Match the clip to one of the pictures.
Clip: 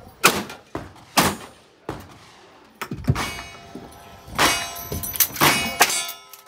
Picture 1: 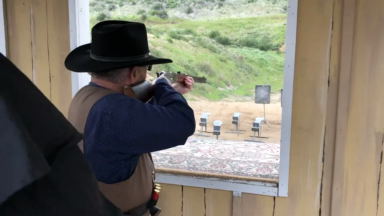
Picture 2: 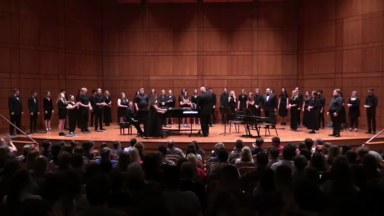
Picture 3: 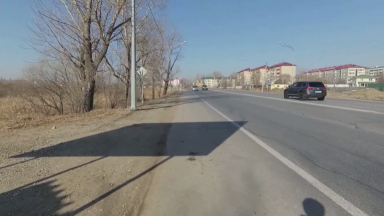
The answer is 1